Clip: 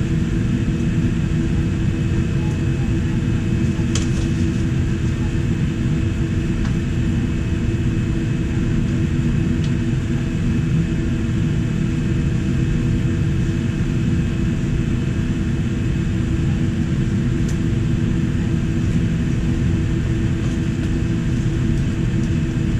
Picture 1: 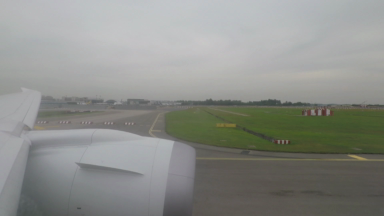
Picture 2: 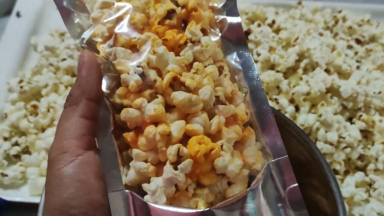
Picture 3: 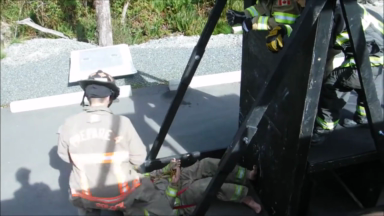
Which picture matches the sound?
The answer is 1